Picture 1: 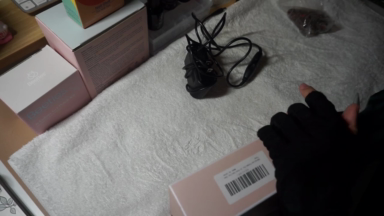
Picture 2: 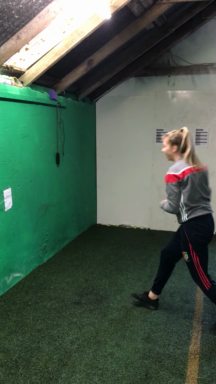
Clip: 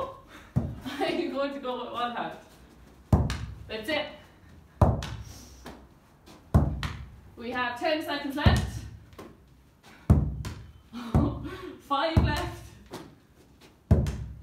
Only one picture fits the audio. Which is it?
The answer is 2